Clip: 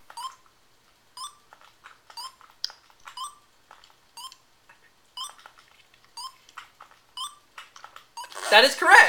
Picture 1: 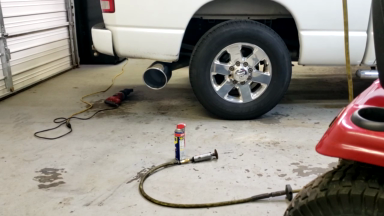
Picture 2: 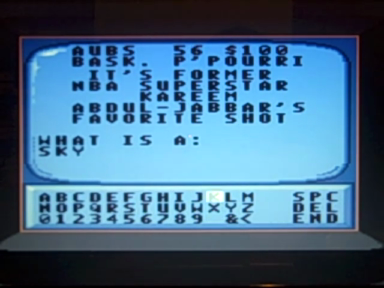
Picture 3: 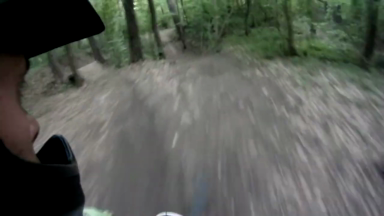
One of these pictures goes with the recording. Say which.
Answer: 2